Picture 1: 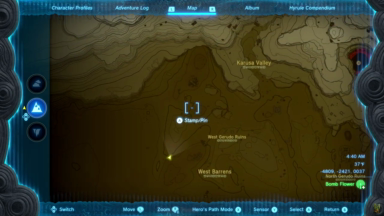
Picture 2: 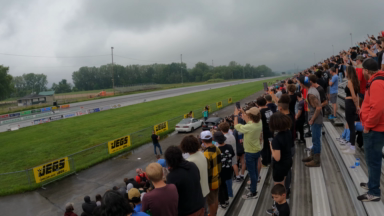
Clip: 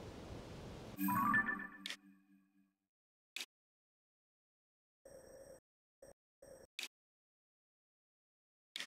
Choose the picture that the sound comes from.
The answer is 1